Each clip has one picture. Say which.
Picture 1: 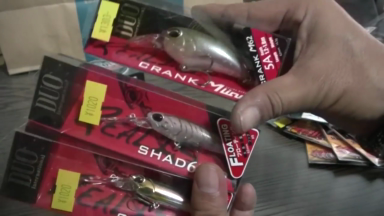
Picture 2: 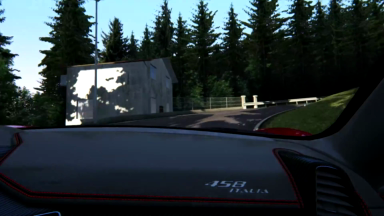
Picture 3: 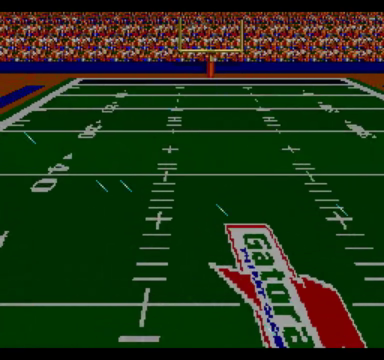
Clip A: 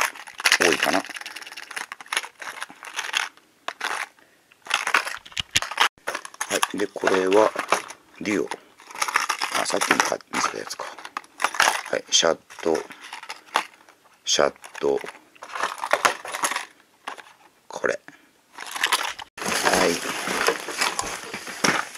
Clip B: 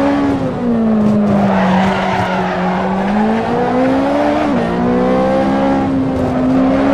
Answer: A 1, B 2